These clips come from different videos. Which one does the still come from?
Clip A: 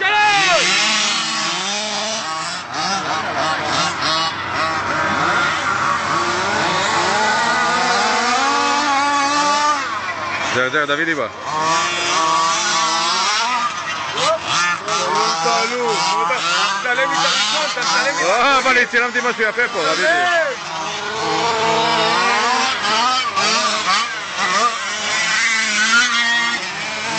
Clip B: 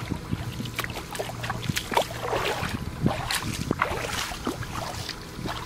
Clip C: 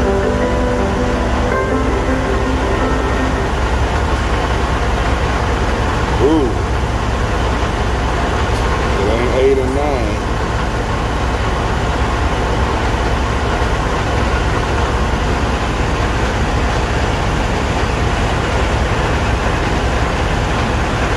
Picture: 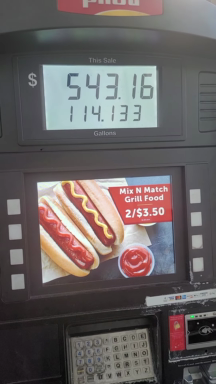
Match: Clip C